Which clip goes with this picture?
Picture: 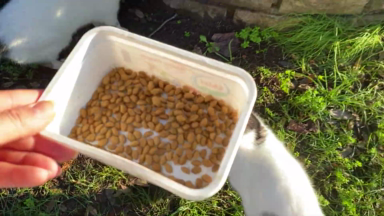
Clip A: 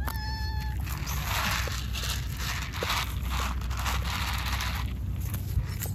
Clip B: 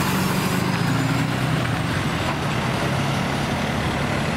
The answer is A